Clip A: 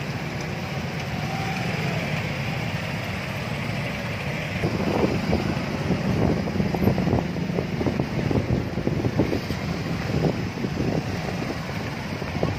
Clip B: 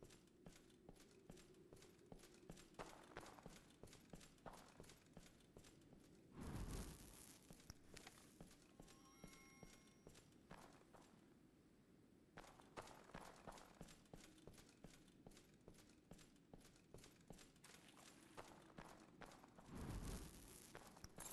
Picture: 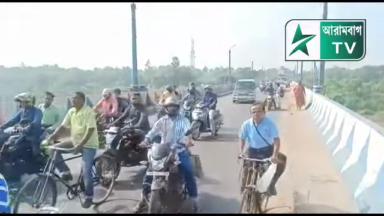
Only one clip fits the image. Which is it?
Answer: A